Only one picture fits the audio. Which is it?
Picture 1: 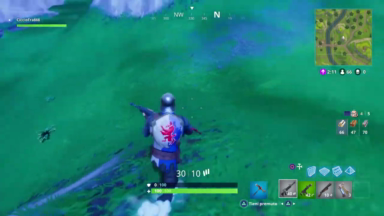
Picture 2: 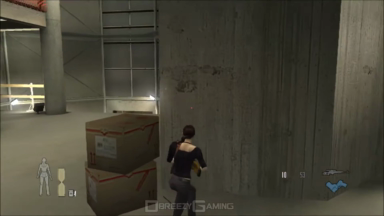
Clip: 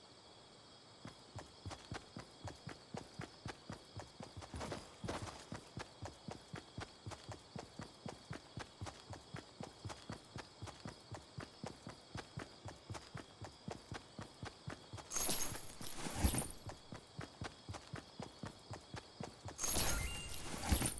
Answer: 1